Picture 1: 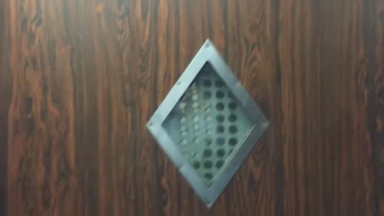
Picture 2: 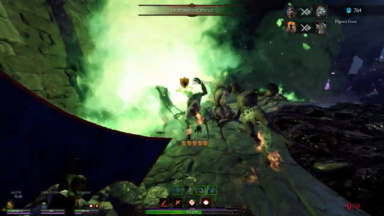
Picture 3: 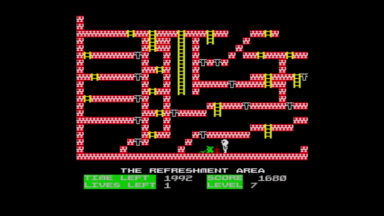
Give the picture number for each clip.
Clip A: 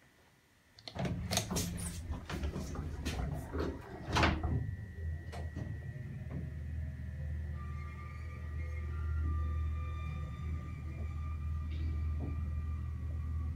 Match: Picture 1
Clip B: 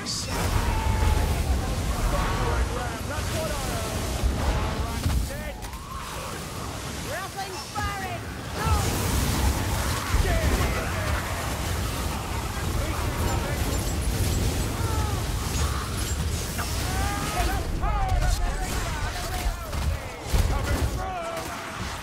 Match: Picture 2